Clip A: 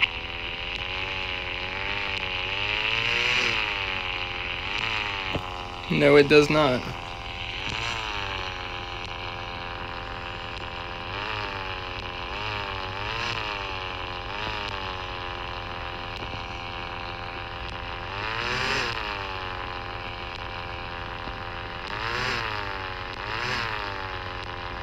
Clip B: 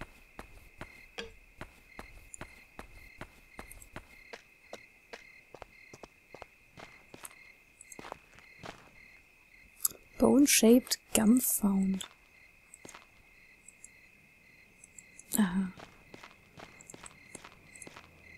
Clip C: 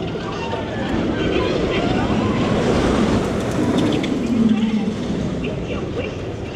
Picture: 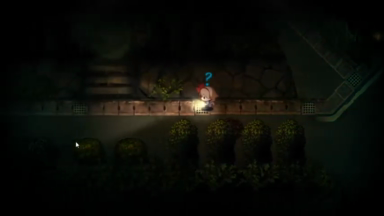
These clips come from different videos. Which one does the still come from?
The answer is B